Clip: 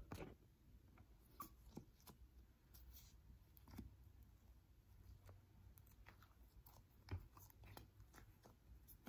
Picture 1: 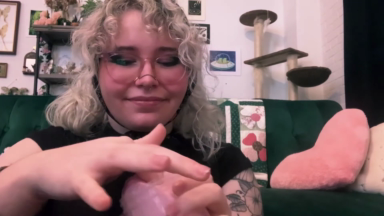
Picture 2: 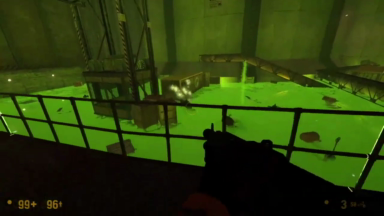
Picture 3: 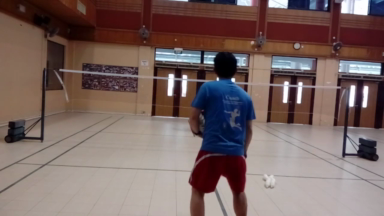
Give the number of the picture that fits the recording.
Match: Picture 1